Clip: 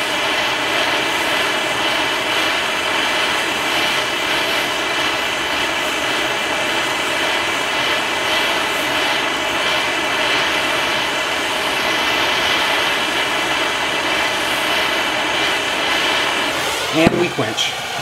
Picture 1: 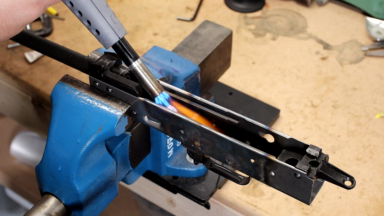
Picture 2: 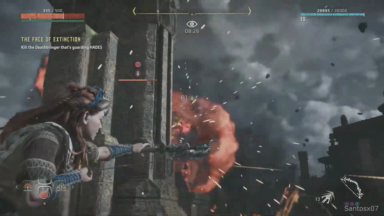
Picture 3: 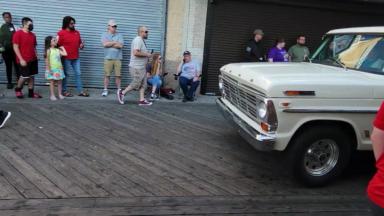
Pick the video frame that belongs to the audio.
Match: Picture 1